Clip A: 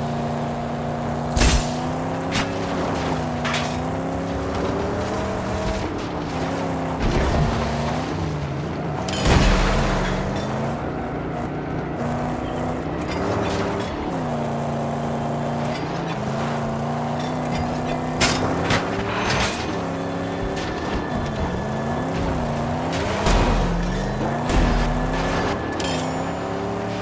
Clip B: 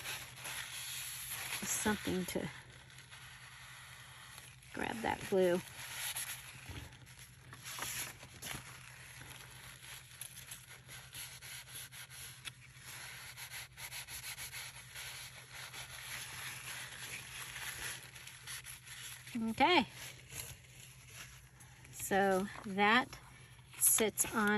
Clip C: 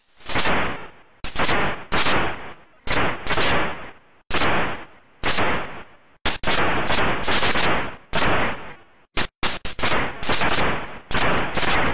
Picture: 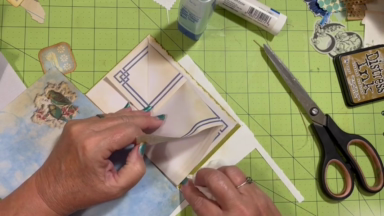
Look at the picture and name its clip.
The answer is B